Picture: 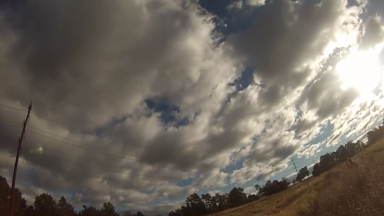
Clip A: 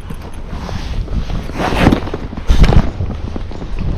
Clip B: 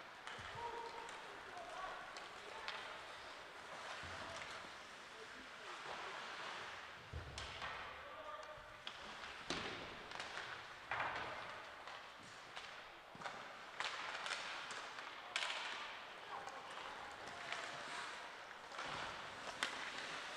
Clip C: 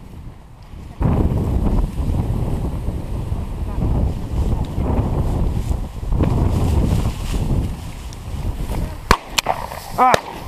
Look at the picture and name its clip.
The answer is C